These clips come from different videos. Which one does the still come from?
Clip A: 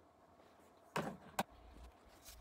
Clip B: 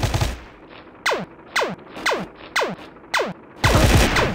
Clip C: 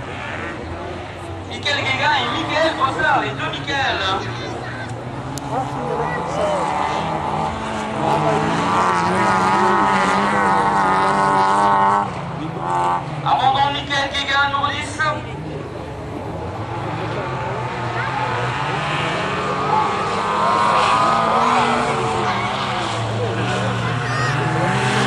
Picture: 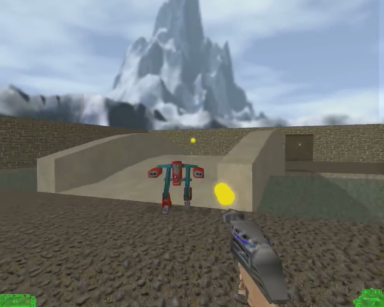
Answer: B